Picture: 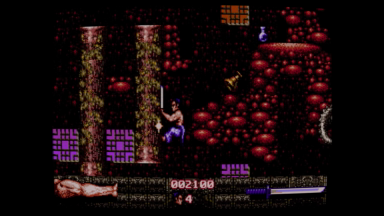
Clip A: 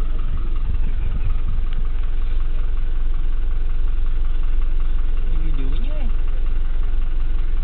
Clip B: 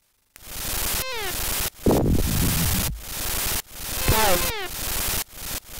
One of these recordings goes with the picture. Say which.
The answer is B